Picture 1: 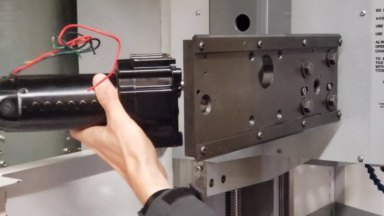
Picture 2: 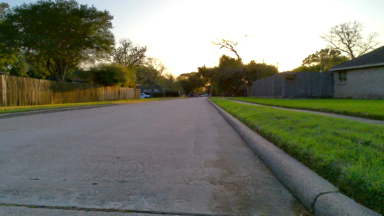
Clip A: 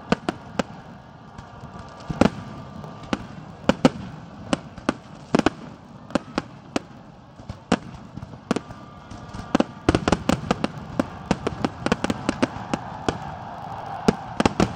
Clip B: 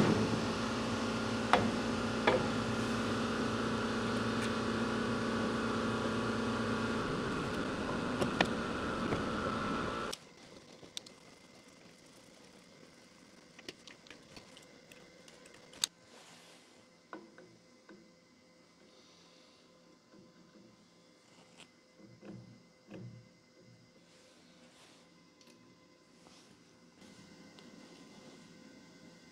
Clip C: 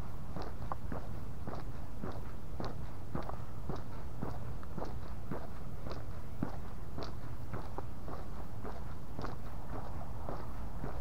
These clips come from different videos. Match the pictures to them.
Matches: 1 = B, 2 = C